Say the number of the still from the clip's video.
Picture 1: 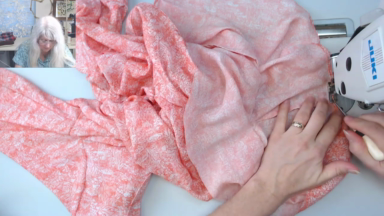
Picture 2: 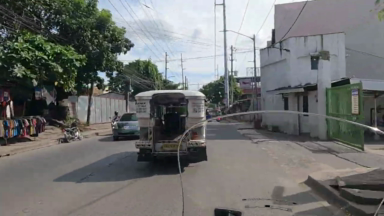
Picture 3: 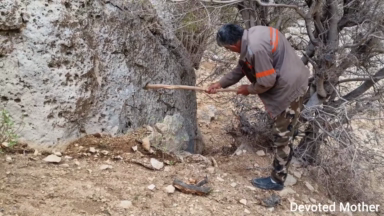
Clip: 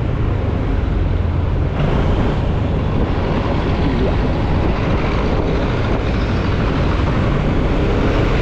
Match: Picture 2